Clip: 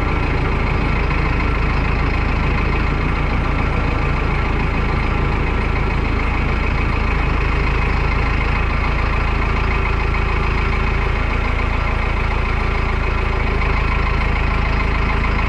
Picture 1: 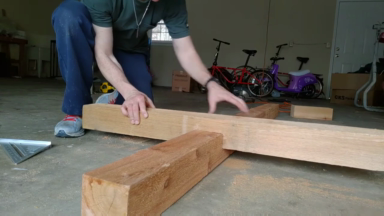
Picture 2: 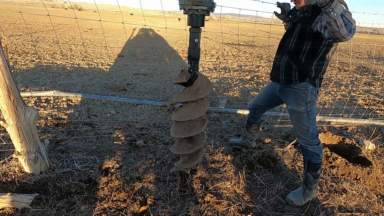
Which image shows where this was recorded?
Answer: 2